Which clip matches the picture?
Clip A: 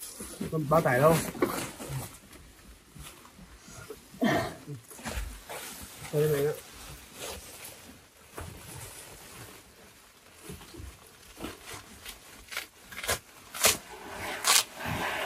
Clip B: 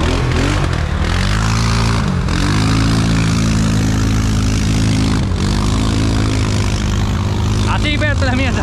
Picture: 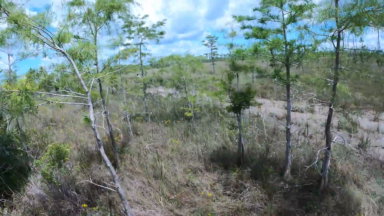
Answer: B